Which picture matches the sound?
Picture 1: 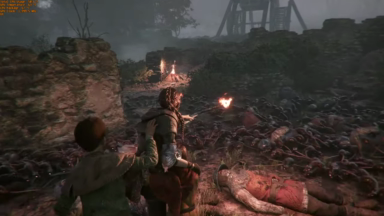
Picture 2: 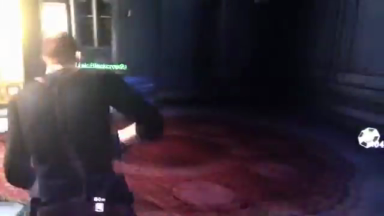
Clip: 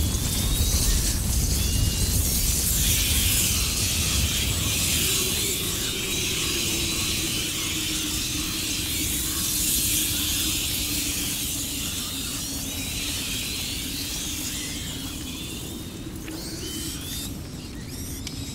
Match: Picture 1